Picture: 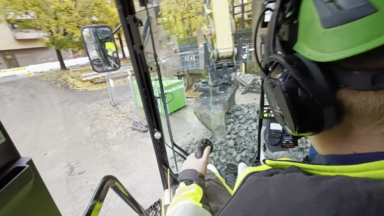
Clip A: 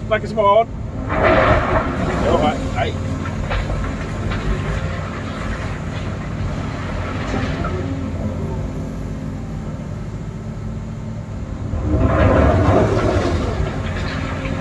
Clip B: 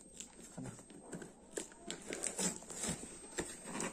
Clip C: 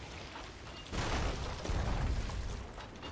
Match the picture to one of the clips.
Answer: A